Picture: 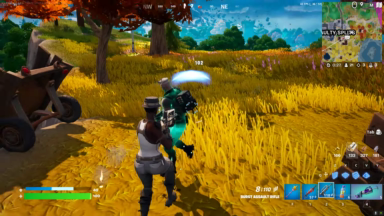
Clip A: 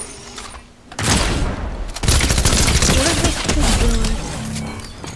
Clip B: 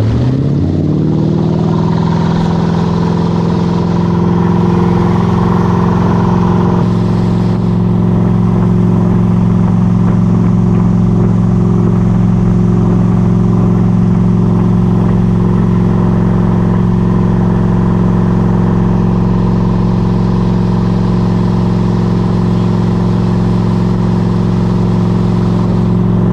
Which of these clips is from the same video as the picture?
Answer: A